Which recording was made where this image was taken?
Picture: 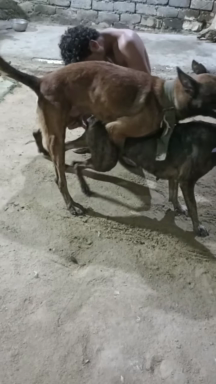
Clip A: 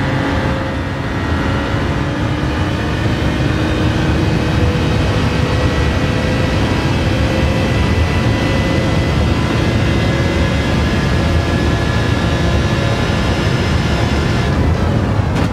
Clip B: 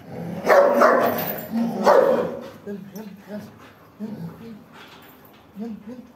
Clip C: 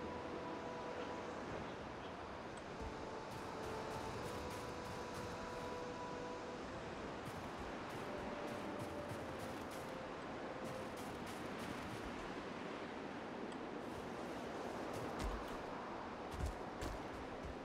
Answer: B